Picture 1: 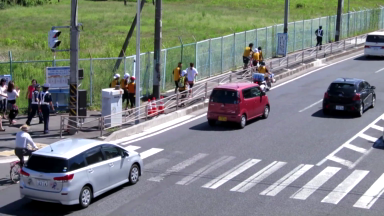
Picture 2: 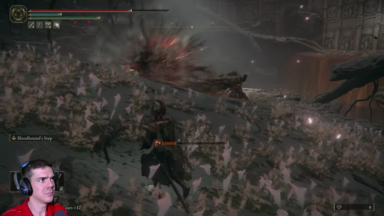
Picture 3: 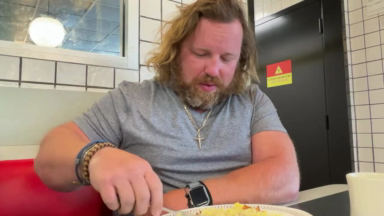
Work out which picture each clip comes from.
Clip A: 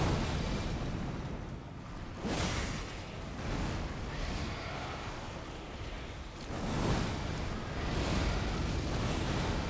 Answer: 2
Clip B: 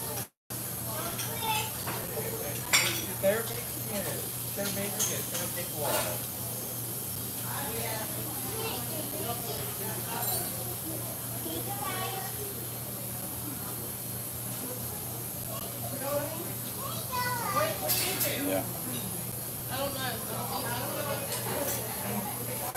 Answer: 3